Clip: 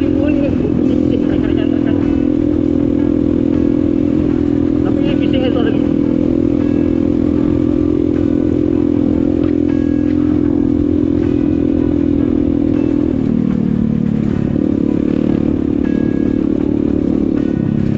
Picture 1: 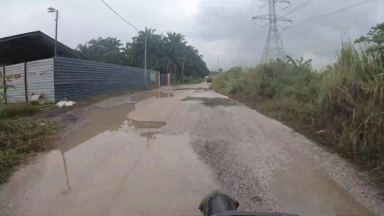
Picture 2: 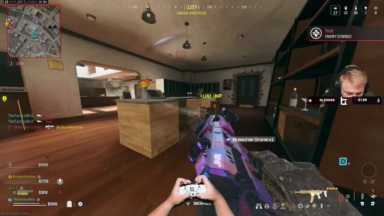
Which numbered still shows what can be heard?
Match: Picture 1